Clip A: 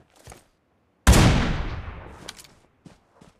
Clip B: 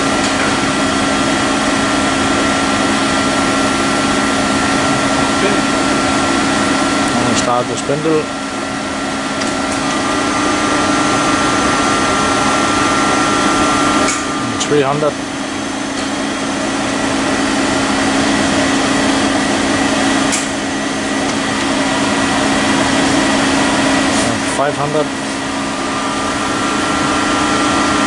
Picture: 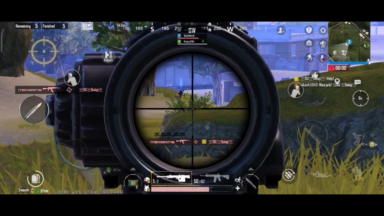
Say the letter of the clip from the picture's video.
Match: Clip A